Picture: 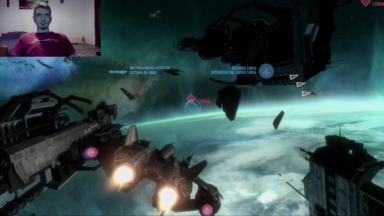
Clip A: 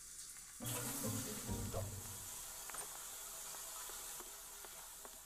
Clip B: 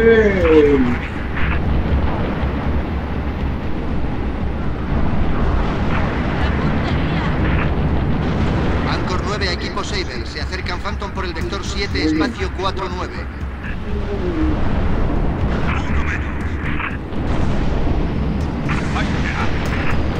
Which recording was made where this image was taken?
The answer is B